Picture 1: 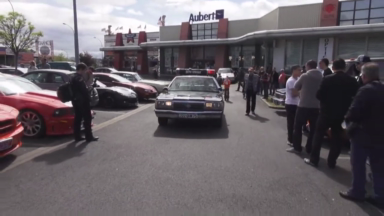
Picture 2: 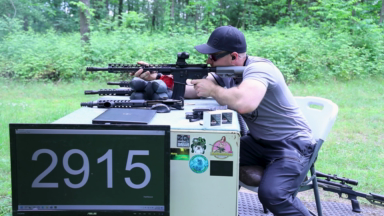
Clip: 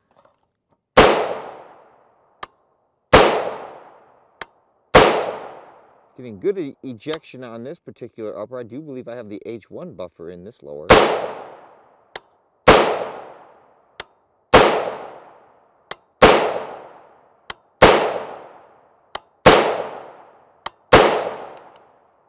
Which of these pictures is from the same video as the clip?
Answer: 2